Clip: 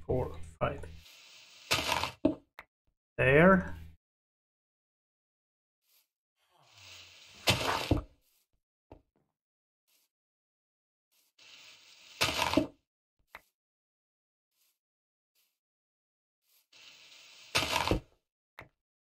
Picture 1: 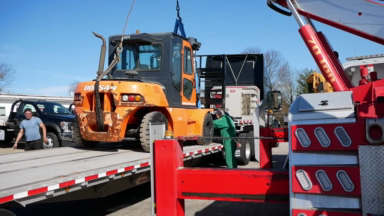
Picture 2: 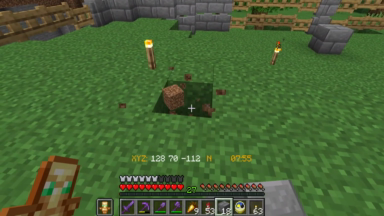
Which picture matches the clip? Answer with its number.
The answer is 2